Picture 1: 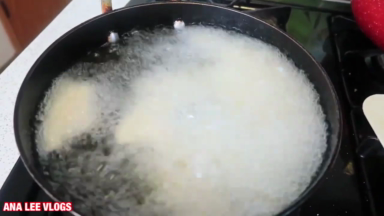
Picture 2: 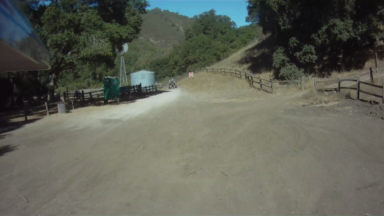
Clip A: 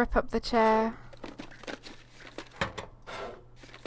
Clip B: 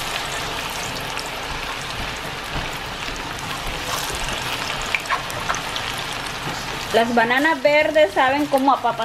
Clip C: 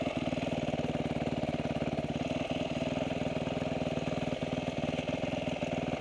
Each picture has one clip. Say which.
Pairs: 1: B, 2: C